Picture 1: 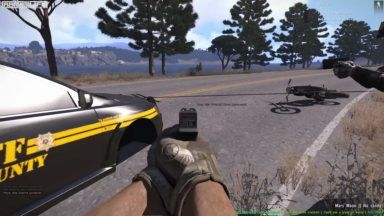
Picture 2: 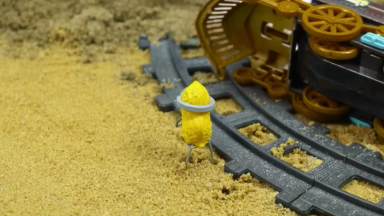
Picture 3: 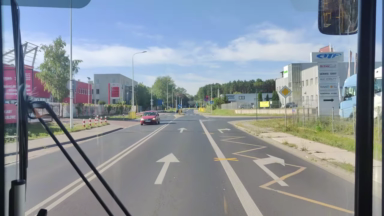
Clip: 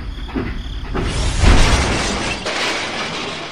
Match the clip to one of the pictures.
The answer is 2